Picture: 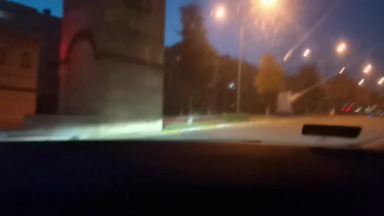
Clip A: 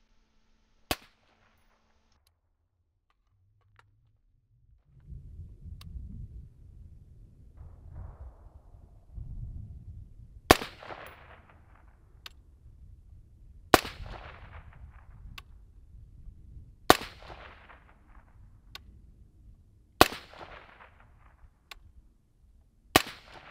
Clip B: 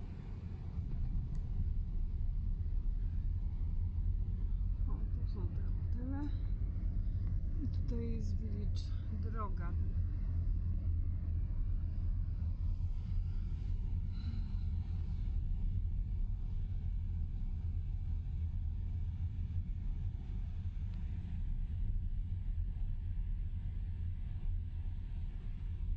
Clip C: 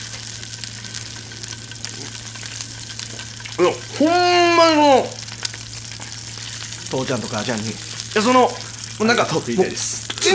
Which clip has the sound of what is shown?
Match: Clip B